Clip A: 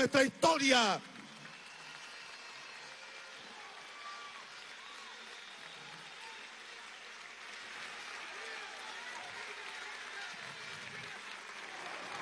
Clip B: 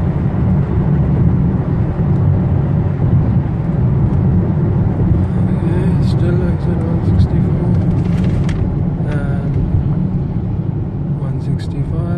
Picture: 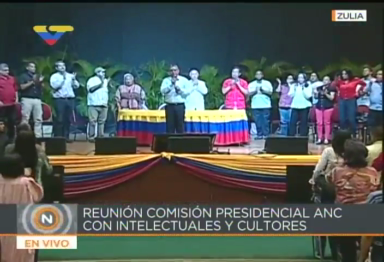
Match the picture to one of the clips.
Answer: A